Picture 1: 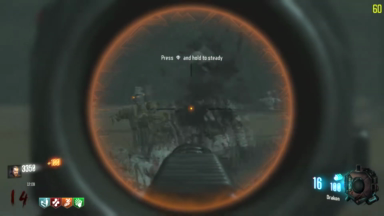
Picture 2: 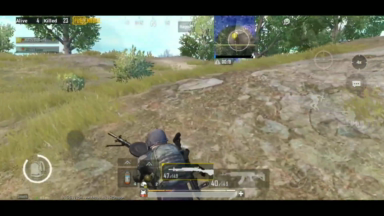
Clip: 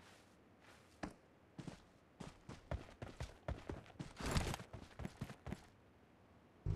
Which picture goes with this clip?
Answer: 2